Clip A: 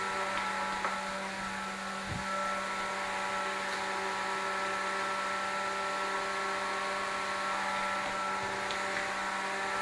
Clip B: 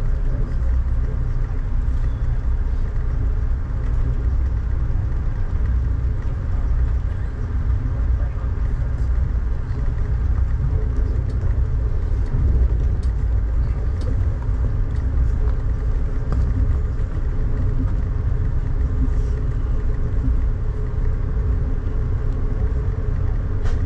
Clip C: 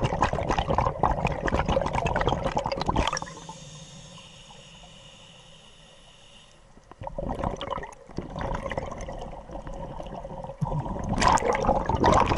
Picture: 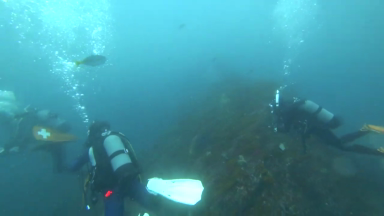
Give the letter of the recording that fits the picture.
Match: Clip C